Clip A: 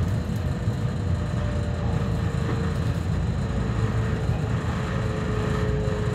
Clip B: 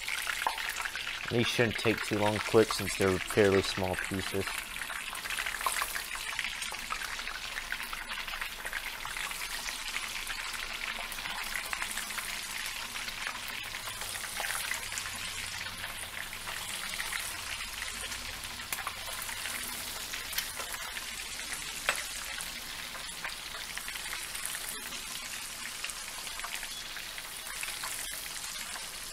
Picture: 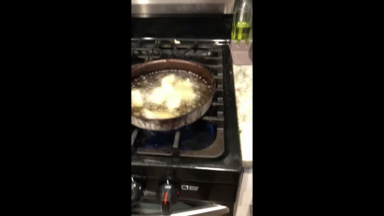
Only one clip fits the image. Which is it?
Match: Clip B